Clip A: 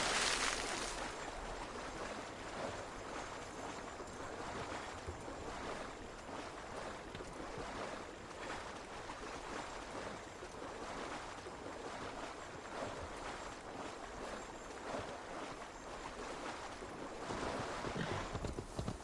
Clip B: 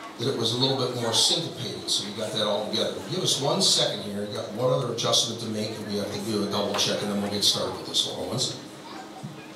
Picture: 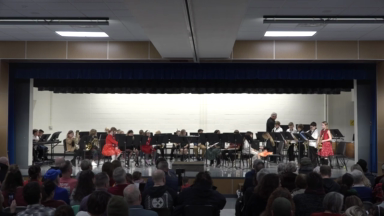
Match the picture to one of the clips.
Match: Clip B